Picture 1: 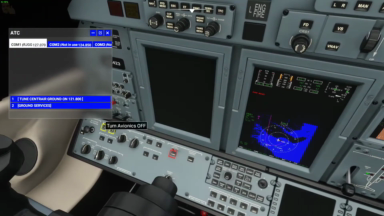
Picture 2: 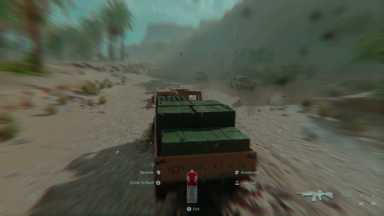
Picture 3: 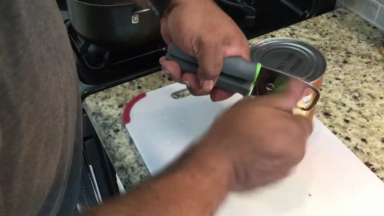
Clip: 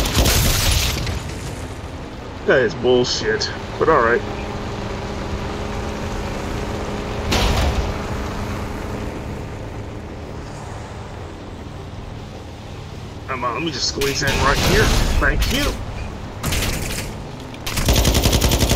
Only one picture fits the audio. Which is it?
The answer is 2